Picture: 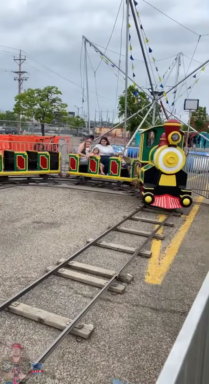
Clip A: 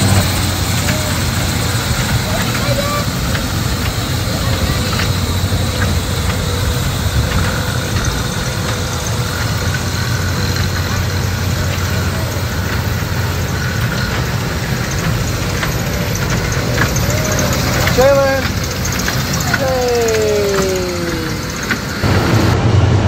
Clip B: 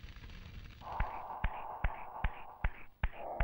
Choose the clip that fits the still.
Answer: A